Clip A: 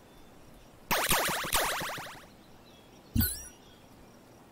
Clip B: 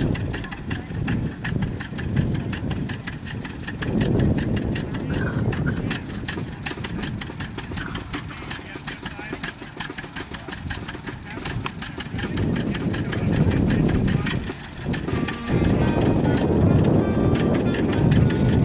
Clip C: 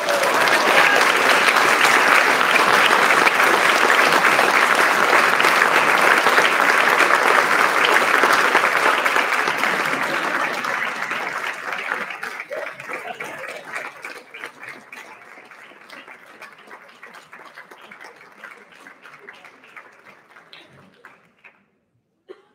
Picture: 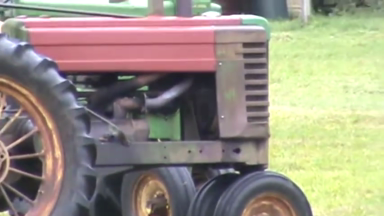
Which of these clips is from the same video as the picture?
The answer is B